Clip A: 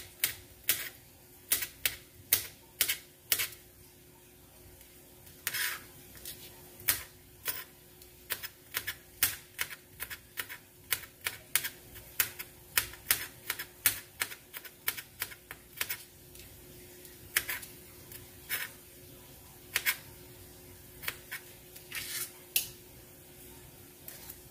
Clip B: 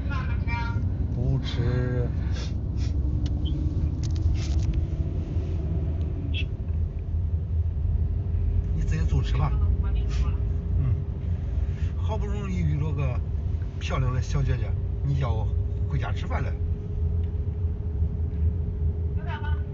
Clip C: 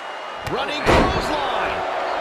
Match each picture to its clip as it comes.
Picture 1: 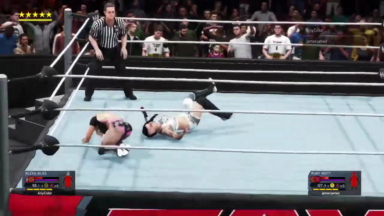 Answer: C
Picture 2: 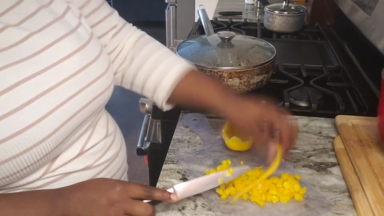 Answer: A